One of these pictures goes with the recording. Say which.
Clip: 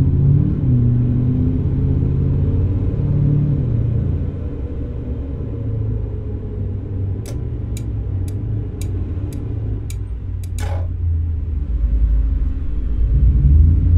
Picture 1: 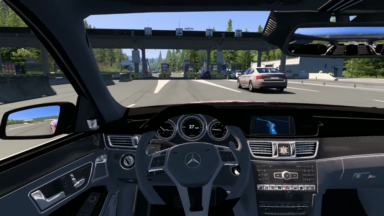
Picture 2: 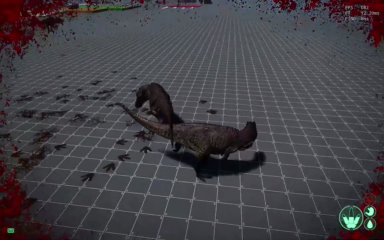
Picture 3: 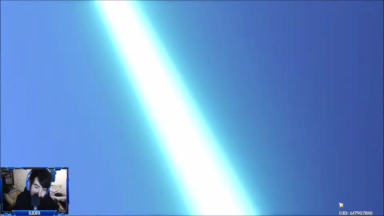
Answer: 1